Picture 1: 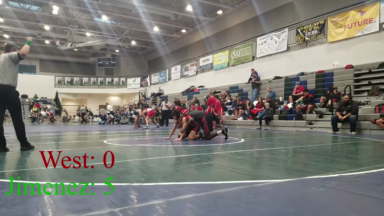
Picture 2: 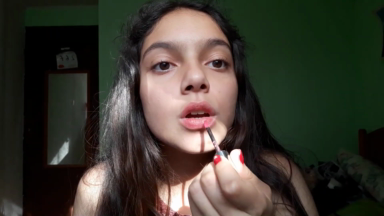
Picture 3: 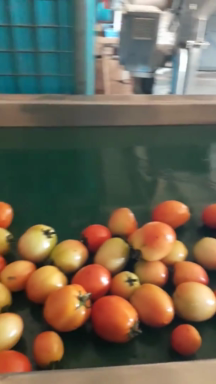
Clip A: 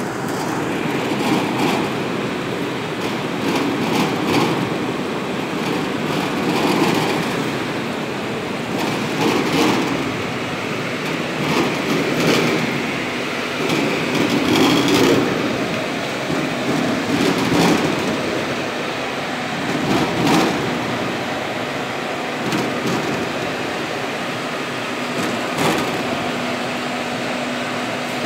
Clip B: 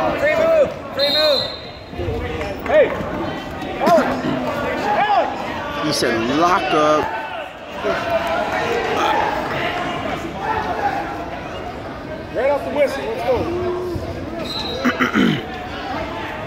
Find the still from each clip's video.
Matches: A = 3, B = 1